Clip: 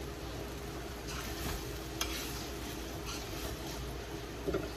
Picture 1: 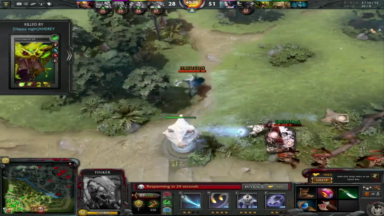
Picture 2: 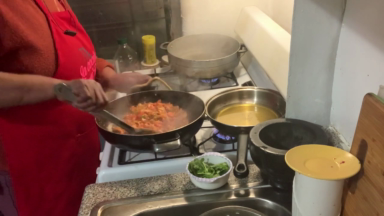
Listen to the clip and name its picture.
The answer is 2